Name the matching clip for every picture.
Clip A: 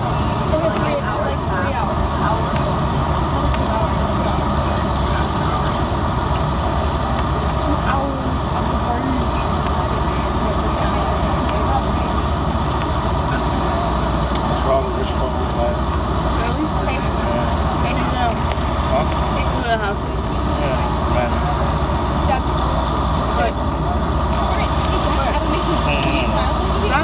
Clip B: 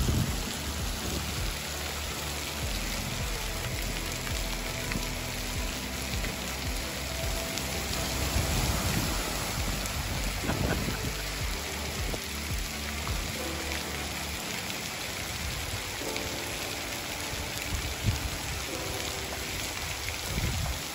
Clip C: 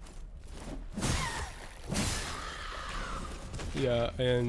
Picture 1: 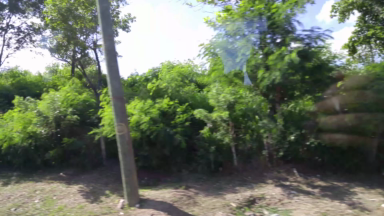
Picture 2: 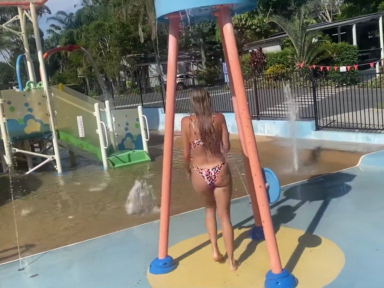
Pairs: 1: A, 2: B